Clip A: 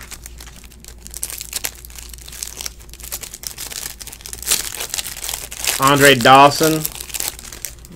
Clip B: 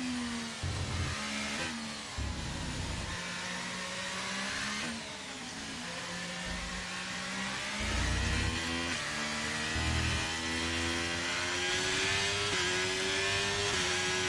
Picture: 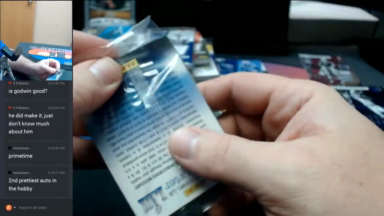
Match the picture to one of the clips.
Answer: A